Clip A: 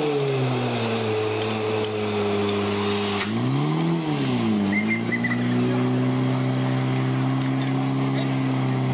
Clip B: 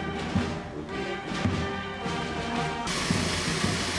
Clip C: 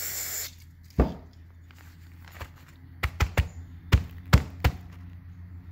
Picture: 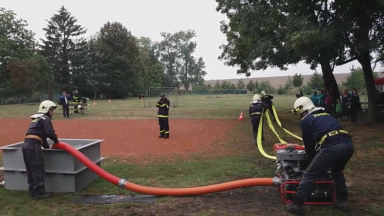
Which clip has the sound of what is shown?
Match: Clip A